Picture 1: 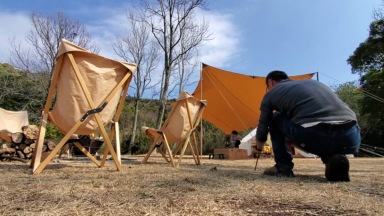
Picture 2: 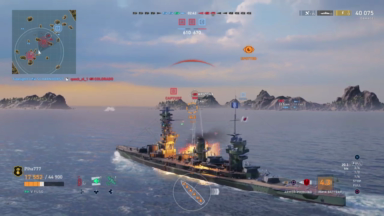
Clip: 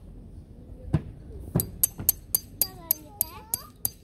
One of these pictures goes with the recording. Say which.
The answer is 1